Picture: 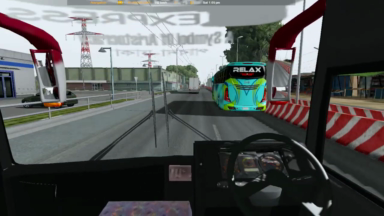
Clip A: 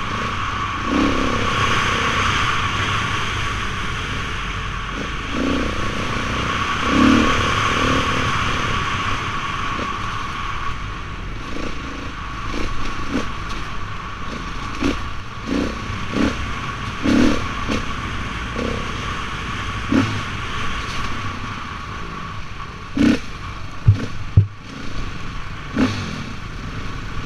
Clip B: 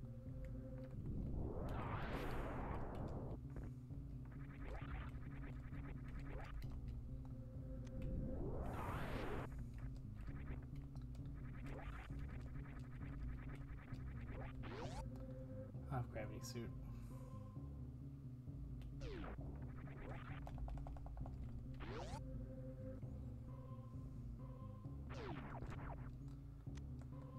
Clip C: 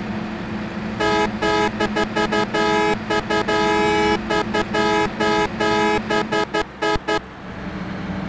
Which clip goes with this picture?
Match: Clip C